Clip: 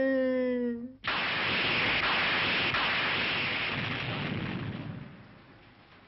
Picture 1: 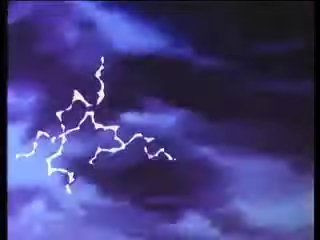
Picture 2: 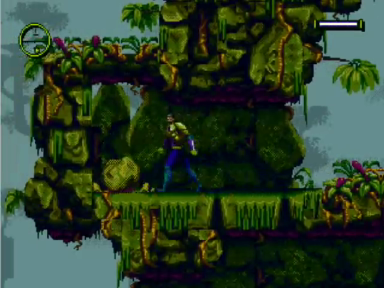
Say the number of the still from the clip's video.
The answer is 1